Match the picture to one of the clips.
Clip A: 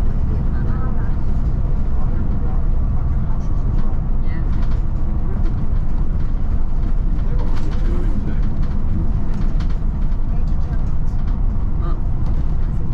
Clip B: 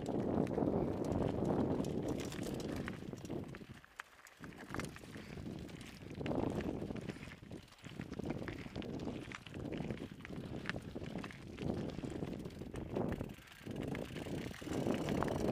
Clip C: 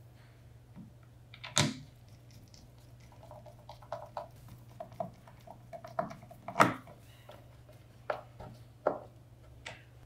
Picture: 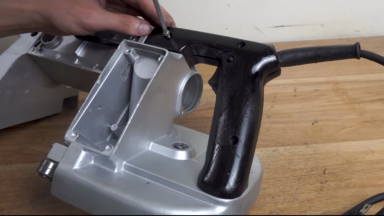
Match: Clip C